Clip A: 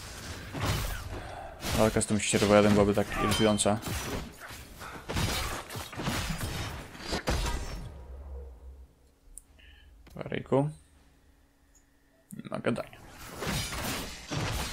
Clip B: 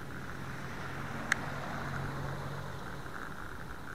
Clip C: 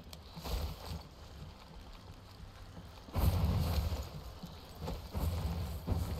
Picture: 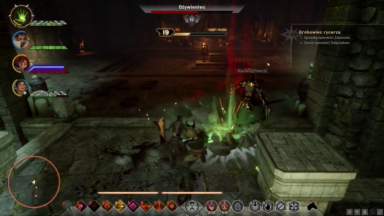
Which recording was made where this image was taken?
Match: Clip A